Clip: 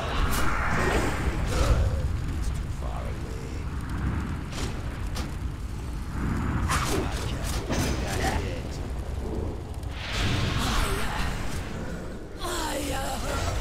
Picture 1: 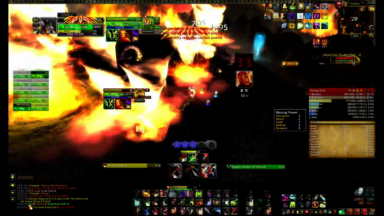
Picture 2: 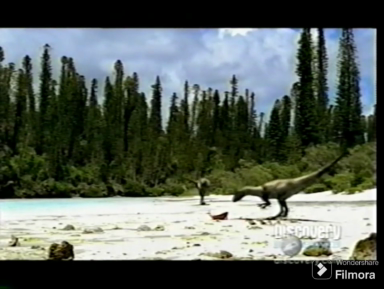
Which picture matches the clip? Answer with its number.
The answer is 1